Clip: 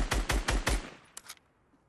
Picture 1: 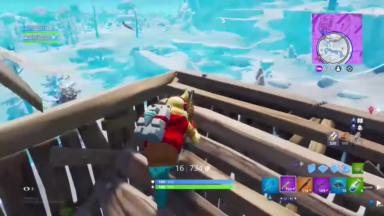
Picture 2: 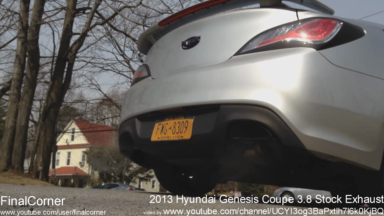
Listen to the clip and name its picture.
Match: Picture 1